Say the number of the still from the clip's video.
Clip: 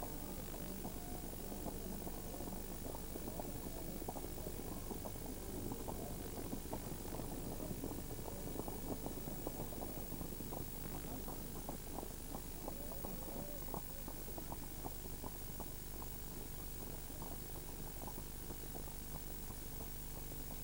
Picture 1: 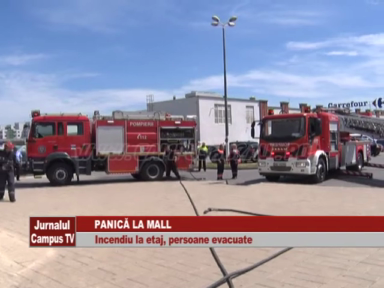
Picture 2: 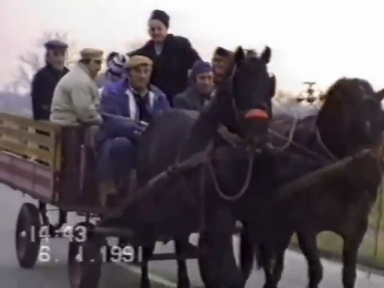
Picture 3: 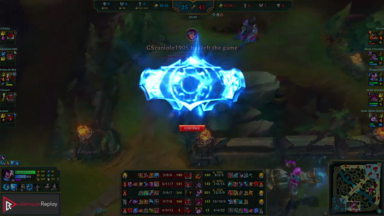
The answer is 2